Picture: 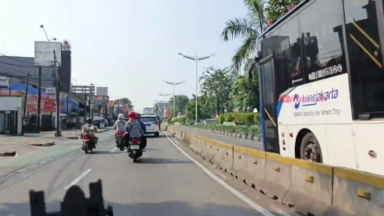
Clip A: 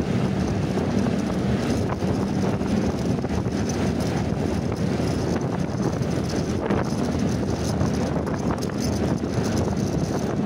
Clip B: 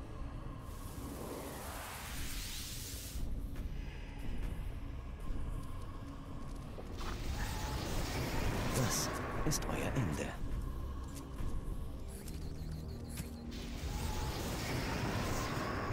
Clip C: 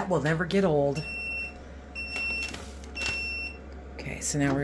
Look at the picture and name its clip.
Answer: A